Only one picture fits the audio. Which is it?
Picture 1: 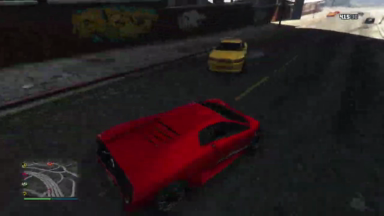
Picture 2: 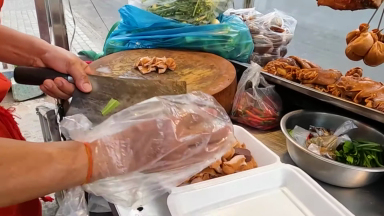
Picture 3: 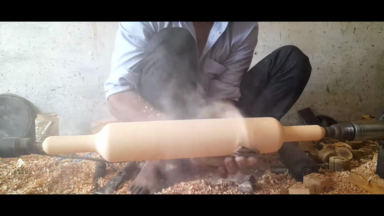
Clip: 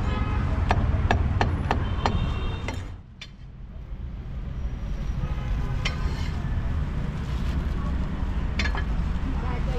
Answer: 2